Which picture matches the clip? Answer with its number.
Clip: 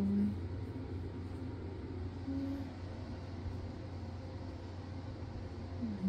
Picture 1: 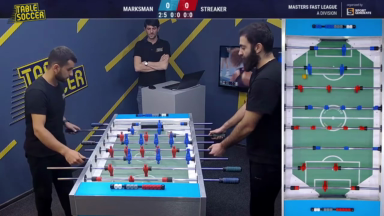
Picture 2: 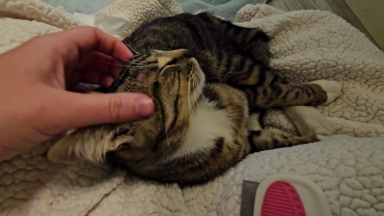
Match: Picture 2